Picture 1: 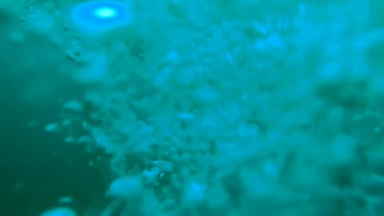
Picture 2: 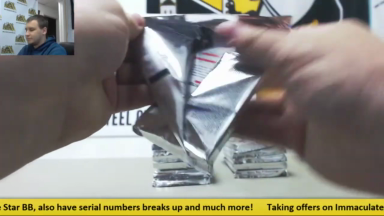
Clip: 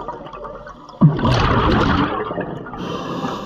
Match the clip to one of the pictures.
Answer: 1